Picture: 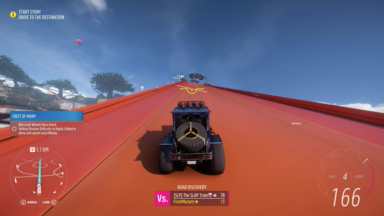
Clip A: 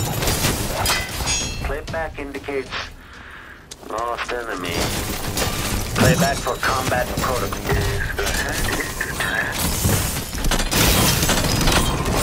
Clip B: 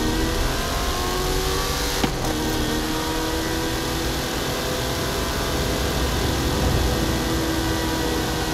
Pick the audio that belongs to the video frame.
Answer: B